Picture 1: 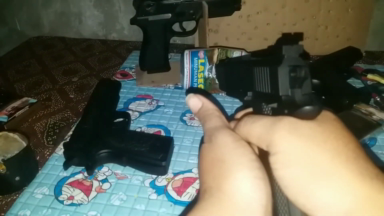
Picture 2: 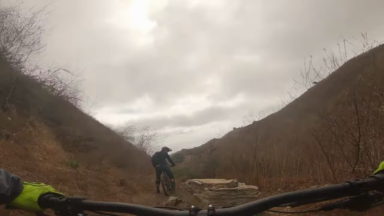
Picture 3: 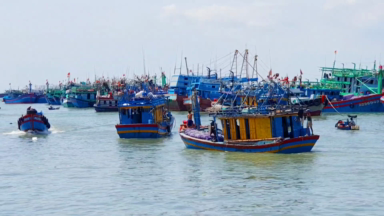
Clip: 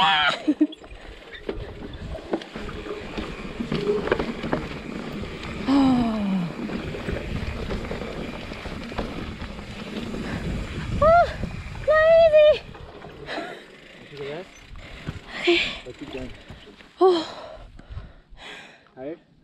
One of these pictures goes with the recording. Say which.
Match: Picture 2